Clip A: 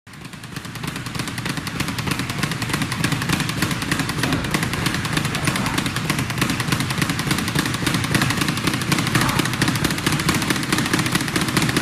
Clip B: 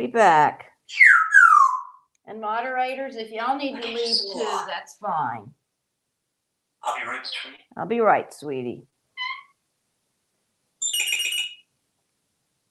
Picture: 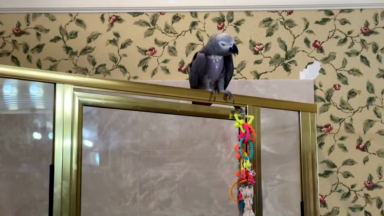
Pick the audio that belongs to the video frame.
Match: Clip B